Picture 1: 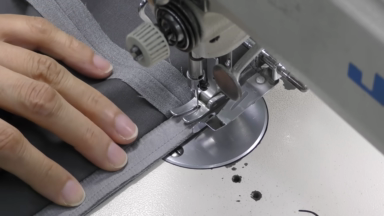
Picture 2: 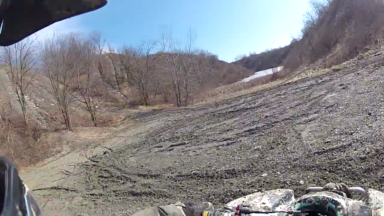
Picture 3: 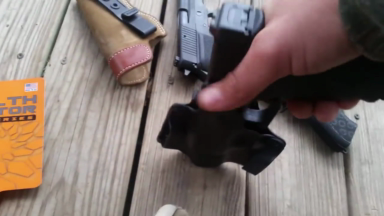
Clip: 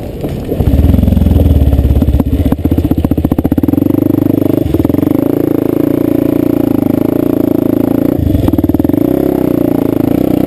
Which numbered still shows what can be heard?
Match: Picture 2